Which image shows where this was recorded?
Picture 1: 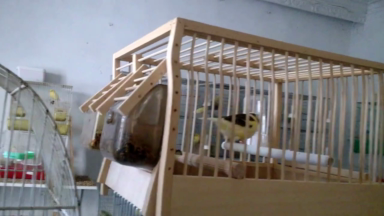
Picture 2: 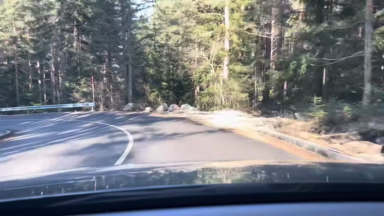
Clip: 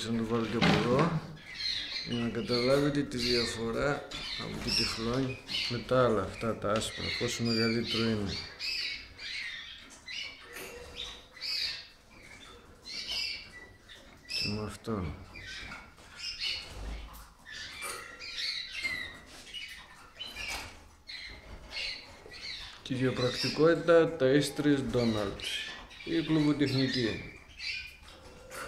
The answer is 1